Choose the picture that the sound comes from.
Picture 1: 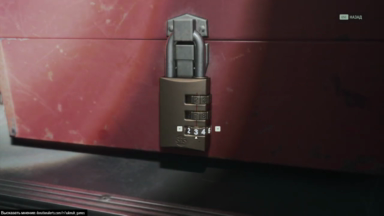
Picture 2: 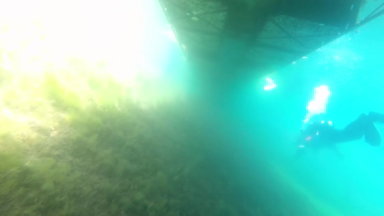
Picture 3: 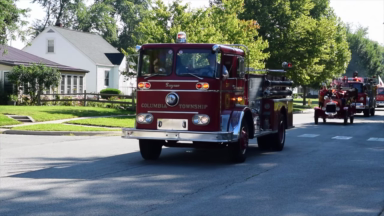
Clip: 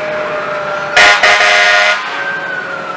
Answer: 3